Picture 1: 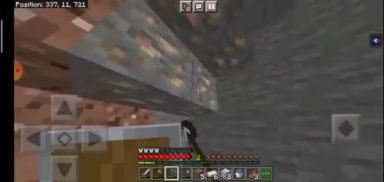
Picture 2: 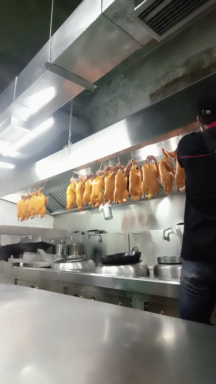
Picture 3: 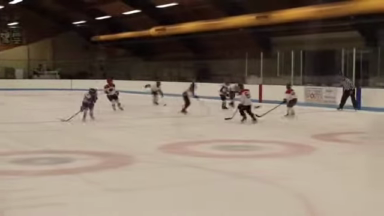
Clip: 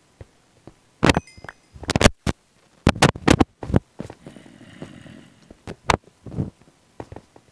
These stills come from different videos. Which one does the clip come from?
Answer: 1